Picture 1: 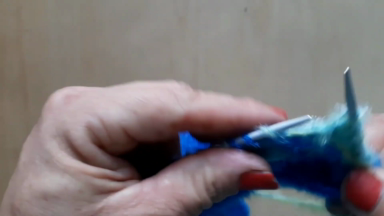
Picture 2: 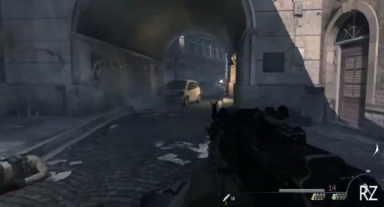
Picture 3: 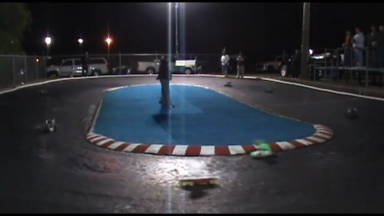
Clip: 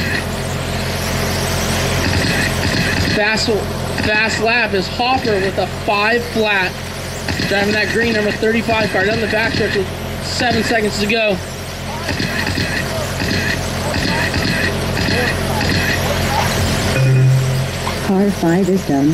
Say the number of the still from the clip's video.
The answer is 3